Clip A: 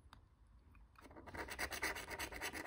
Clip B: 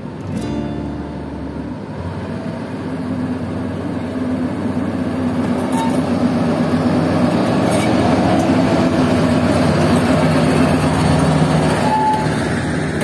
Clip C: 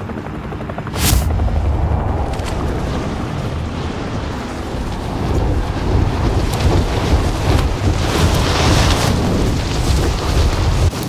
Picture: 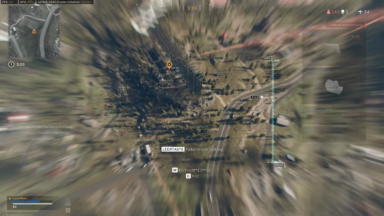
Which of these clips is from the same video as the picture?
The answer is C